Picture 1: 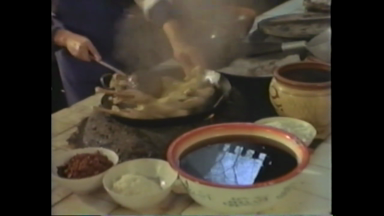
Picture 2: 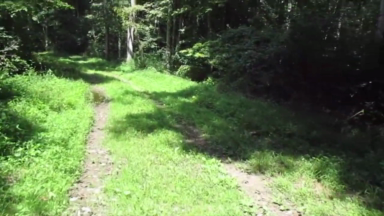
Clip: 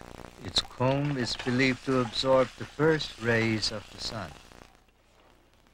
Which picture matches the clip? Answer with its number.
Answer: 1